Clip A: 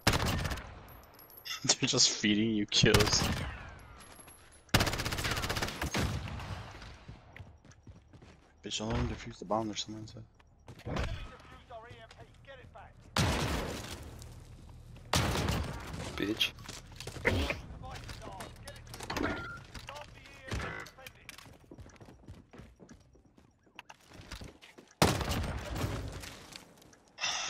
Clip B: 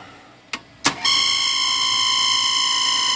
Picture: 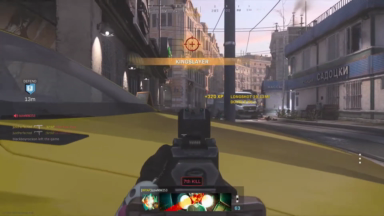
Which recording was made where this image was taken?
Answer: A